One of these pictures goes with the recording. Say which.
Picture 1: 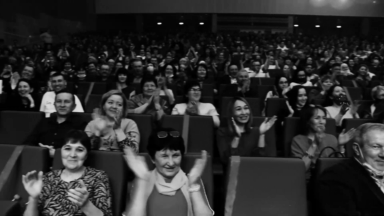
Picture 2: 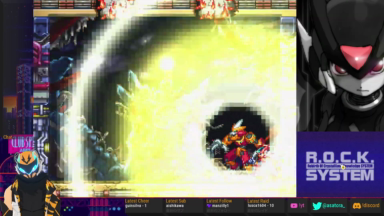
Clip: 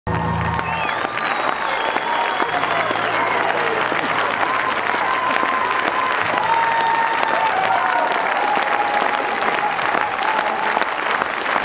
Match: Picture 1